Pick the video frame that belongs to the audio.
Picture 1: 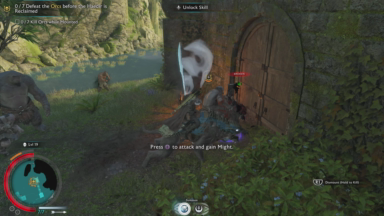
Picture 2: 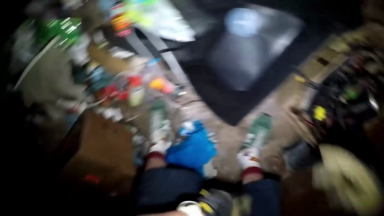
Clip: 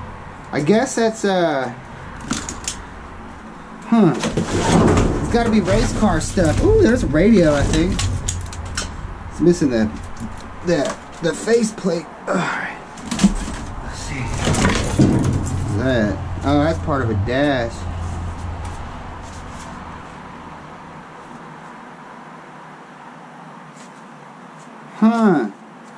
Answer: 2